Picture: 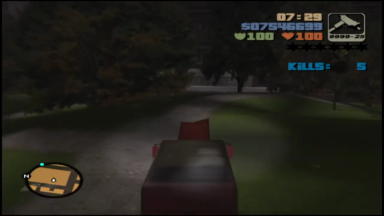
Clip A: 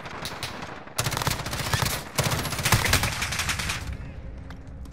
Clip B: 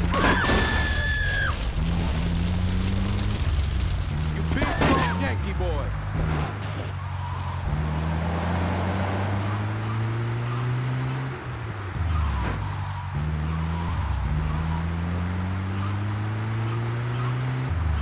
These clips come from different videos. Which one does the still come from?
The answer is B